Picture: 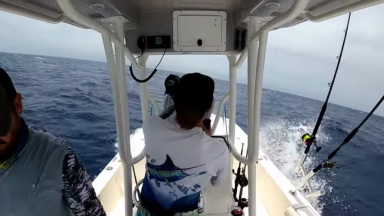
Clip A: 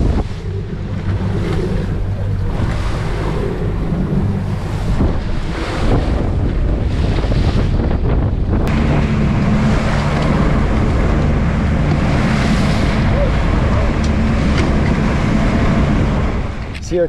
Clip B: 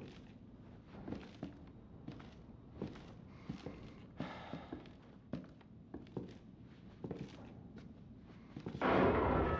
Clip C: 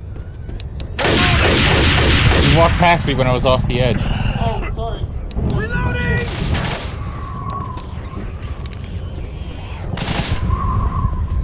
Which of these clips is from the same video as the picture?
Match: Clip A